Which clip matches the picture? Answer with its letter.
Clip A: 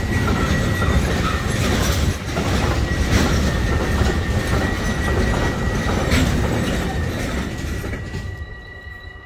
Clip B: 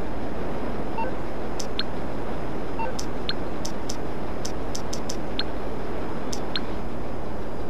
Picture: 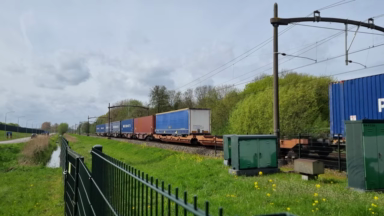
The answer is A